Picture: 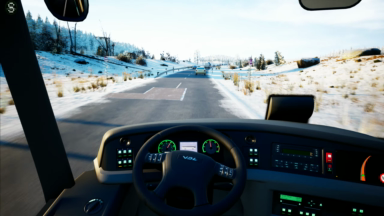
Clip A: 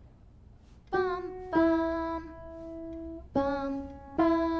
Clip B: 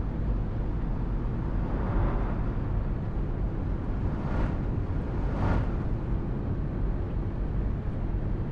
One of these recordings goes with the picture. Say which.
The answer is B